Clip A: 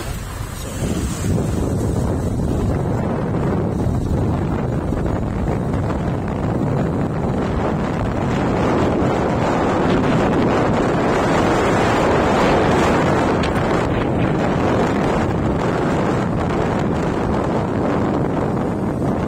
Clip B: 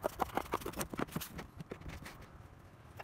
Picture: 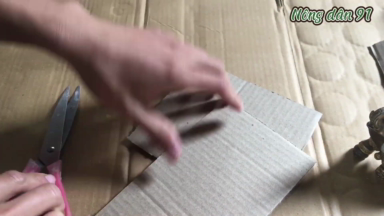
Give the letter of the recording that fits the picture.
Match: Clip B